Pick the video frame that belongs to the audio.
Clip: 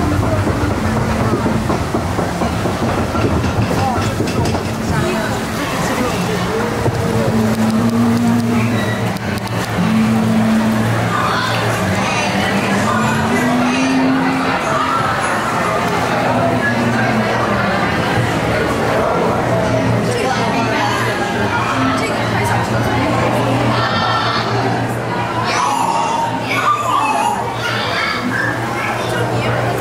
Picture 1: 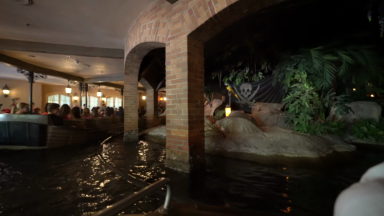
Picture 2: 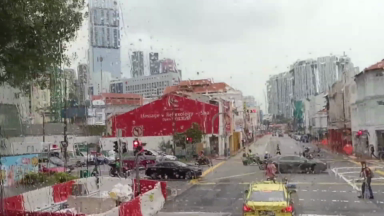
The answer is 1